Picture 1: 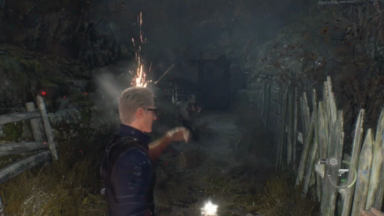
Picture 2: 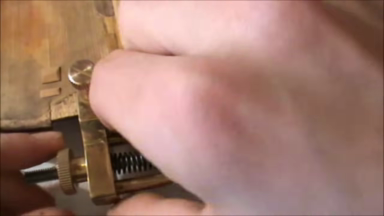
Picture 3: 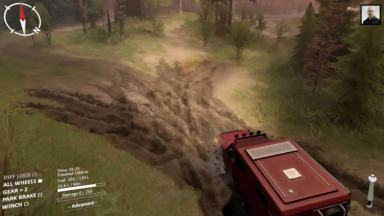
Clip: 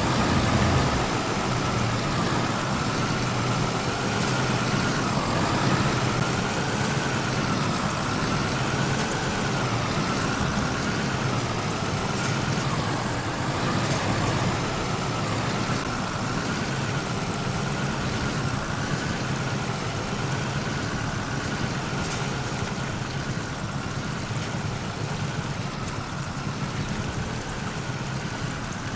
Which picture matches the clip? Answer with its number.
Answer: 3